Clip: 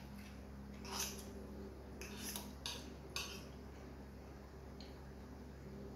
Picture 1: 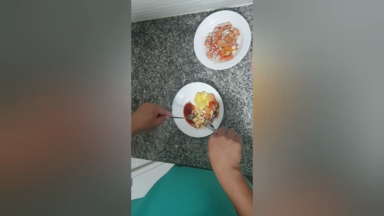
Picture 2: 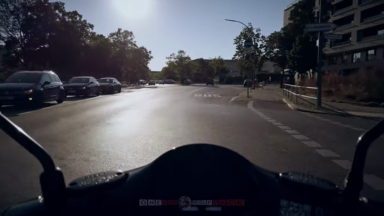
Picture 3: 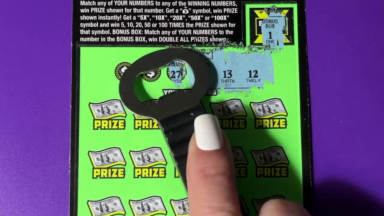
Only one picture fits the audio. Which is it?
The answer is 1